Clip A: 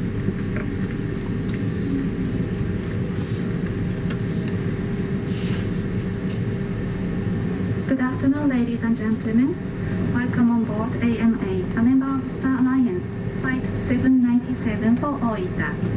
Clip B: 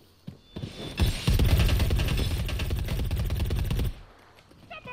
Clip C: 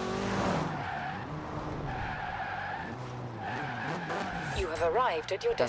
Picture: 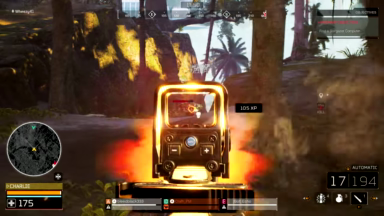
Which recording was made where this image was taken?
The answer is B